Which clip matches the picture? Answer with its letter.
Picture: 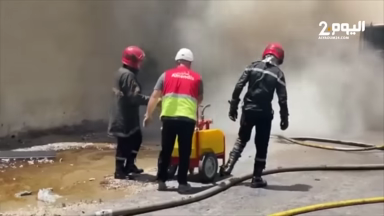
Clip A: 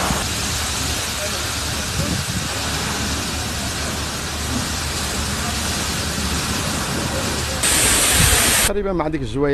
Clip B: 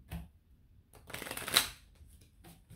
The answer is A